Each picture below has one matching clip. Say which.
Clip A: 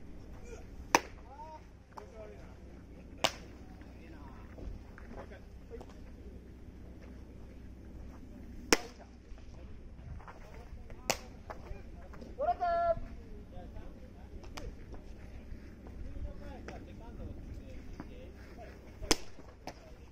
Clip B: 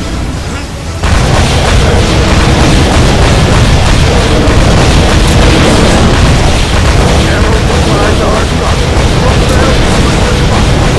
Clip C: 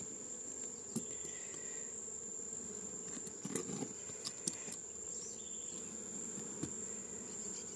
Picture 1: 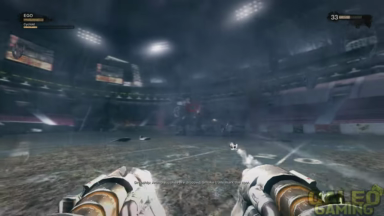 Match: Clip B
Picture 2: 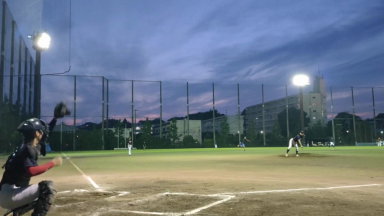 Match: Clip A